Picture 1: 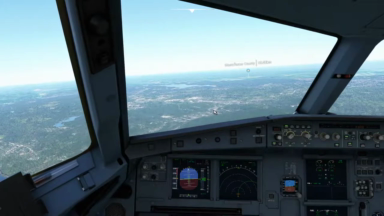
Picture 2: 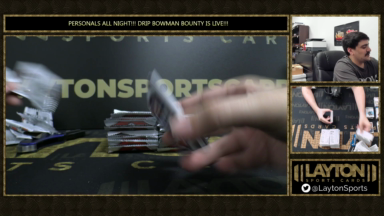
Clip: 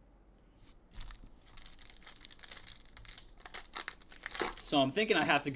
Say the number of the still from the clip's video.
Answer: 2